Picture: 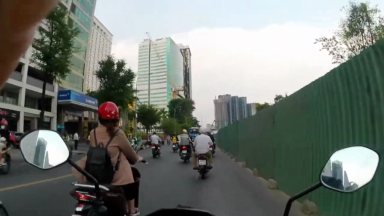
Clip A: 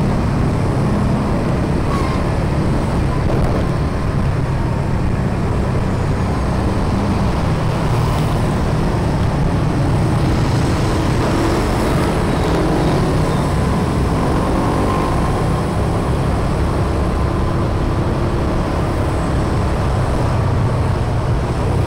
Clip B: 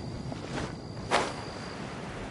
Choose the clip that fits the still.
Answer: A